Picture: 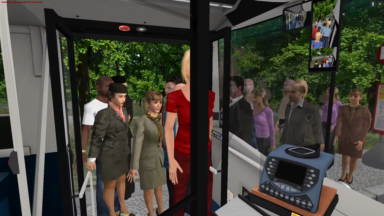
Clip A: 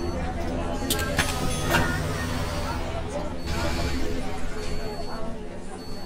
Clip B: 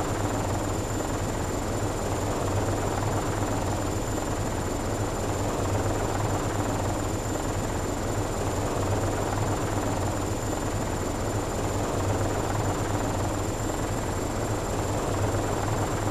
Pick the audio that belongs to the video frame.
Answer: A